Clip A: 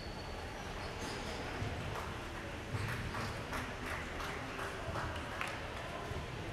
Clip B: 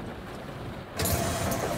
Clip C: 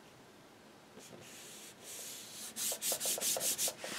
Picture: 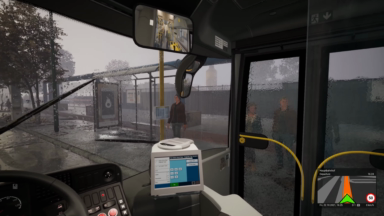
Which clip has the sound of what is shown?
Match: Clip B